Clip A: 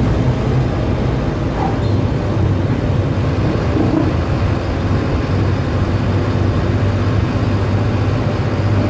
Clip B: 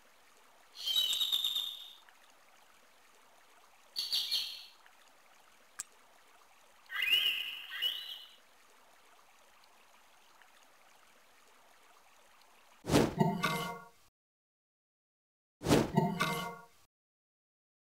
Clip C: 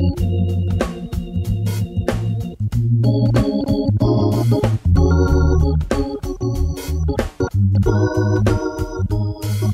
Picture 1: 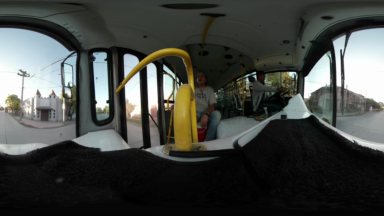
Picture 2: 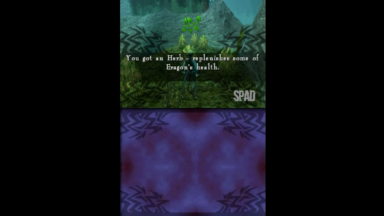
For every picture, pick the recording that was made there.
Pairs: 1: A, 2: B